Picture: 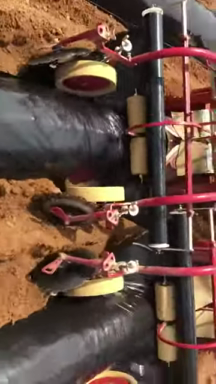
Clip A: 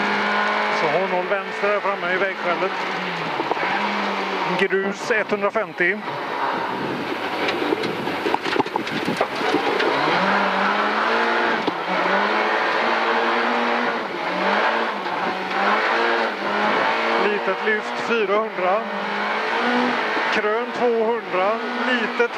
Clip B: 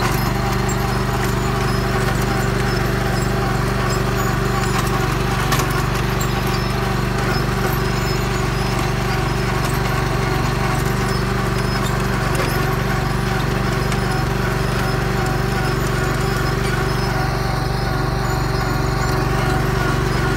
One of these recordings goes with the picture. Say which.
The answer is B